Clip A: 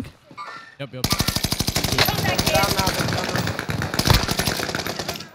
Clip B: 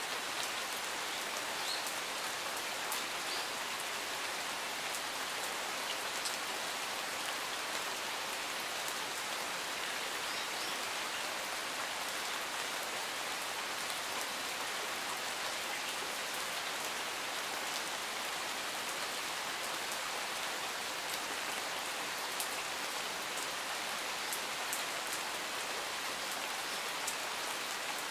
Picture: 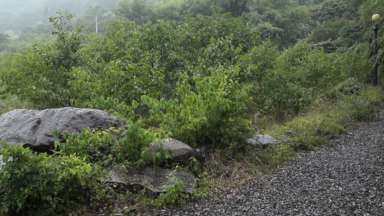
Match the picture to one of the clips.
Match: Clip B